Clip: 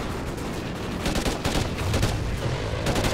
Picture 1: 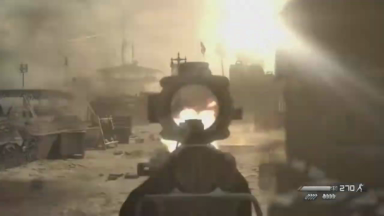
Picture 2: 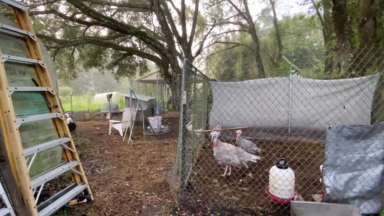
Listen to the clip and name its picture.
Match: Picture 1